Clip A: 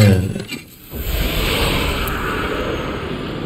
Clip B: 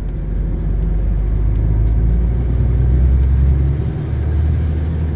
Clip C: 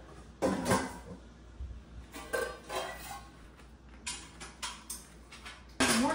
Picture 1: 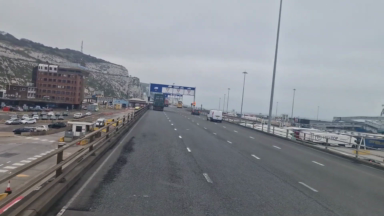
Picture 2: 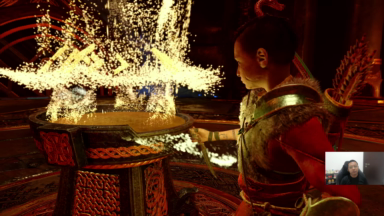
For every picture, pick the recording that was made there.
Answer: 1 B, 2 A